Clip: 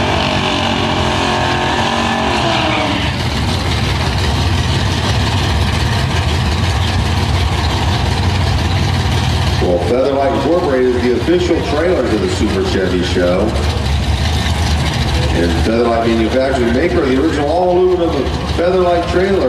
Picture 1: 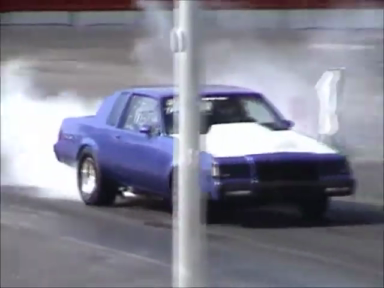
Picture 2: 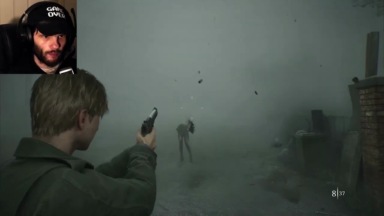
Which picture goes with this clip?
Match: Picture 1